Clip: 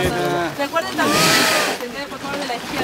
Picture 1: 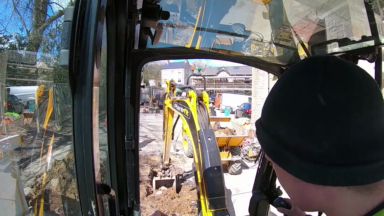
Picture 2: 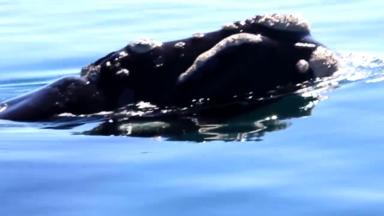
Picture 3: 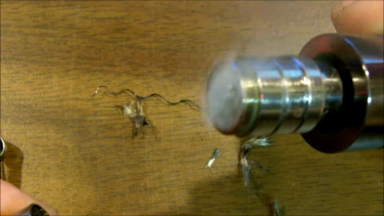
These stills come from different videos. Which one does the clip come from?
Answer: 2